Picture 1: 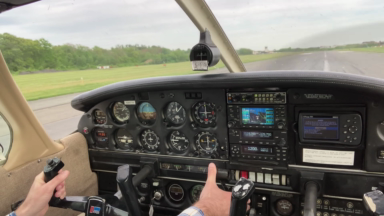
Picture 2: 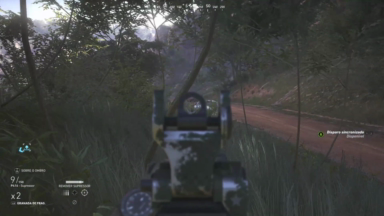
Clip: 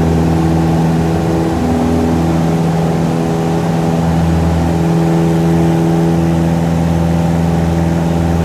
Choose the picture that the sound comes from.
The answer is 1